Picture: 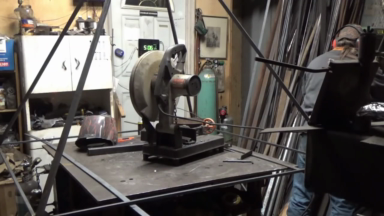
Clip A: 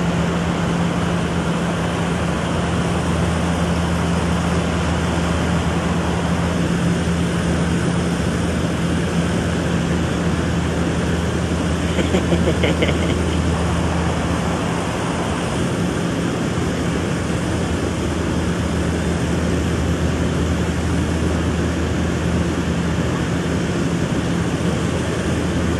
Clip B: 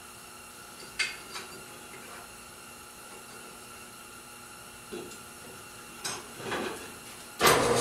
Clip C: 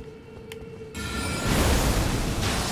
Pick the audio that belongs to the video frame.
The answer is B